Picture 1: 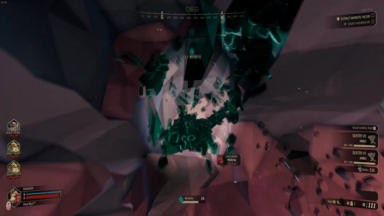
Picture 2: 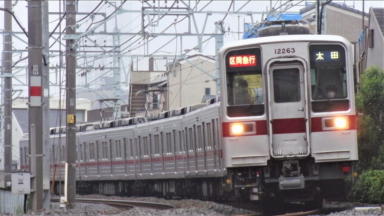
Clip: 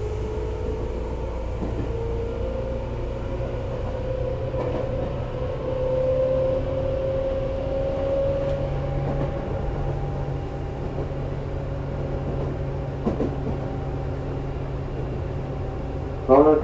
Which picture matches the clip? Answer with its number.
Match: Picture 2